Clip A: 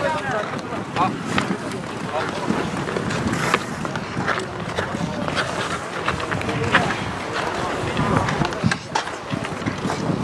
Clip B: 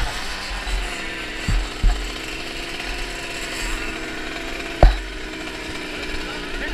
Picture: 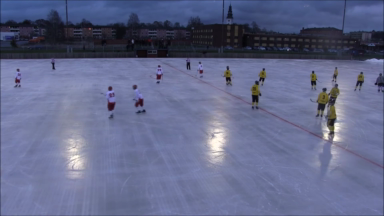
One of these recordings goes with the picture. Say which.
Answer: A